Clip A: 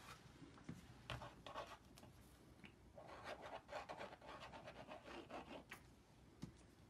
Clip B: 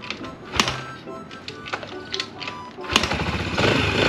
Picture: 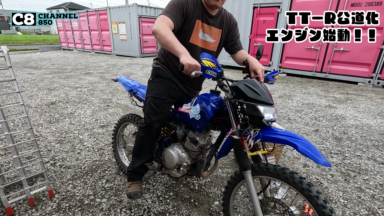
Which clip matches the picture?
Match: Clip B